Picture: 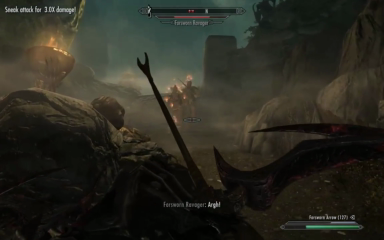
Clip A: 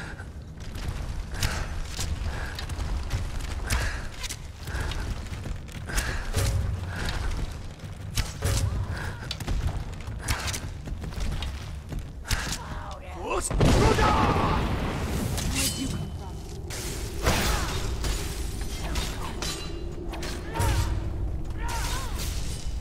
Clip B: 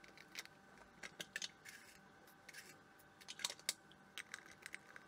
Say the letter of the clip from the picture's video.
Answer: A